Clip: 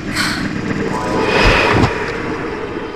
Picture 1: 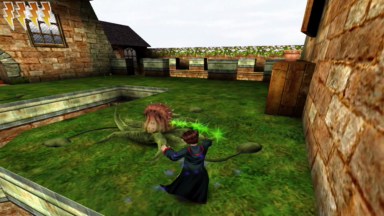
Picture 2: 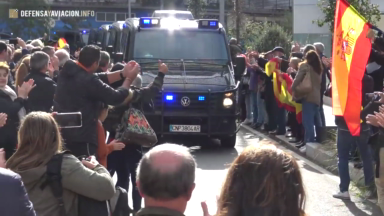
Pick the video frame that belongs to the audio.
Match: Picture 1